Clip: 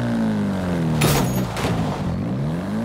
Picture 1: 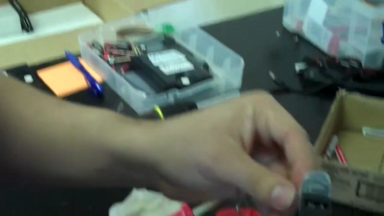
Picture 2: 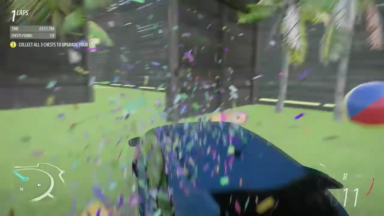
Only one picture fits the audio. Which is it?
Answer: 2